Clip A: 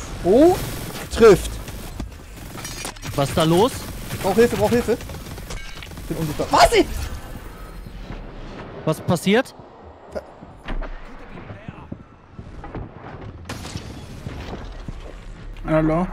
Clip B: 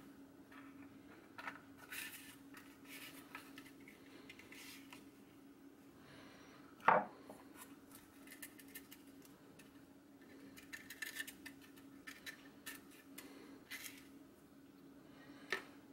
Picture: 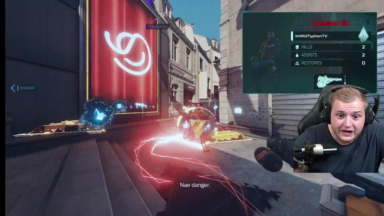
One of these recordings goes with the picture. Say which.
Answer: A